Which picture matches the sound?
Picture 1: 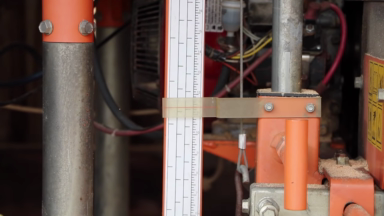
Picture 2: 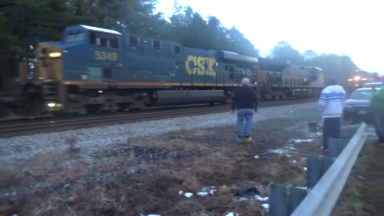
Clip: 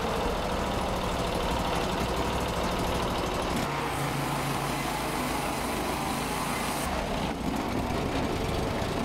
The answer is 1